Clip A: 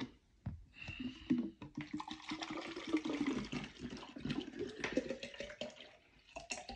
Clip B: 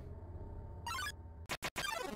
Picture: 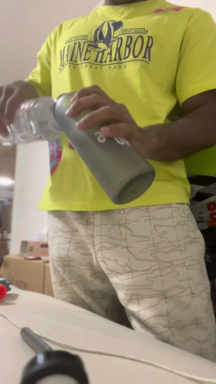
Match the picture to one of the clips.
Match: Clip A